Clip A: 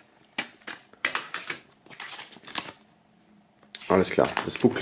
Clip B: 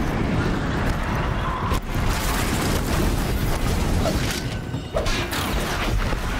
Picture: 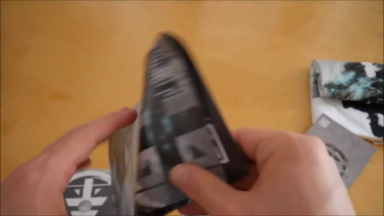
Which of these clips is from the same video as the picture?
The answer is A